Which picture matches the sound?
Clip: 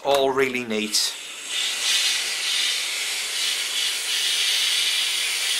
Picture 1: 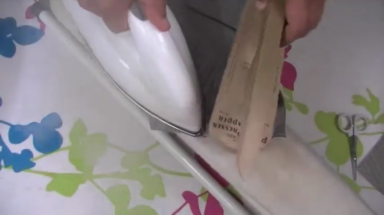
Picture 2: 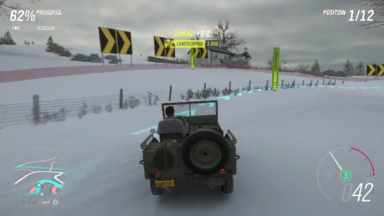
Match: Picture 1